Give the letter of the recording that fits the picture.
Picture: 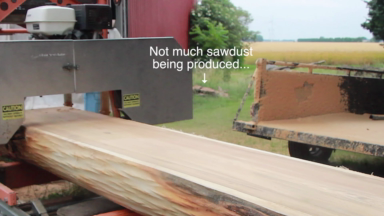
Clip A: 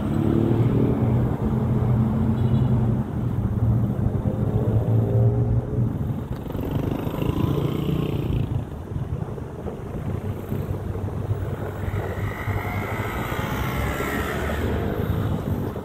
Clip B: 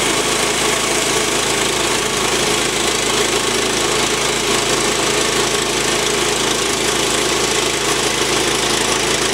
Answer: B